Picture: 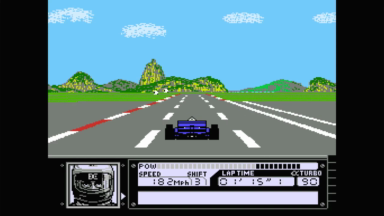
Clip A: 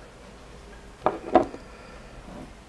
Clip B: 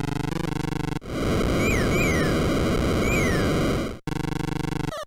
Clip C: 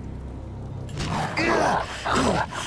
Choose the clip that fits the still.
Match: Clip B